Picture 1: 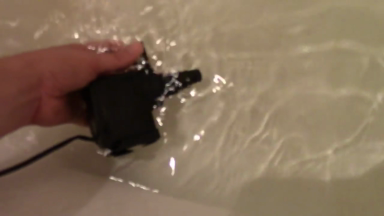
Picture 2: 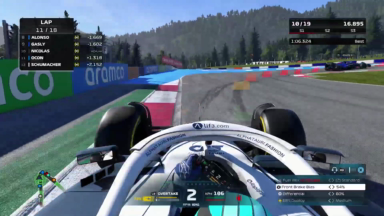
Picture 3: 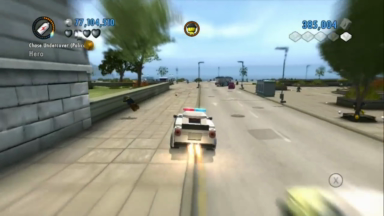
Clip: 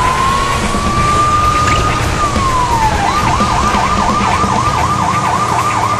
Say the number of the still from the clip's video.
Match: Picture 3